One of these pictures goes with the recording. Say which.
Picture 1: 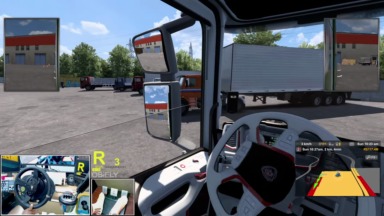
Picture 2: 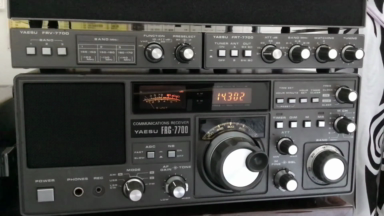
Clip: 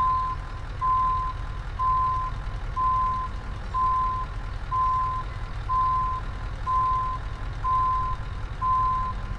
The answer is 1